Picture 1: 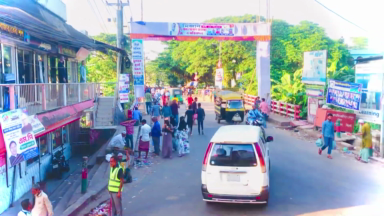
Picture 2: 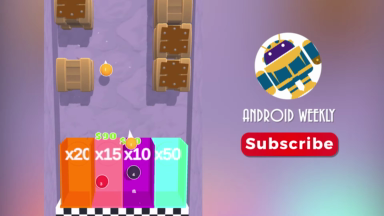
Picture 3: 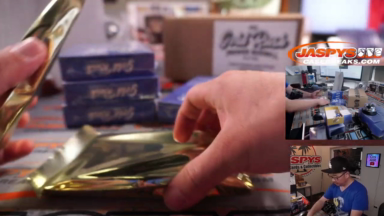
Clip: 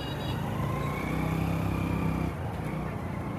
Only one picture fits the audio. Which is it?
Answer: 1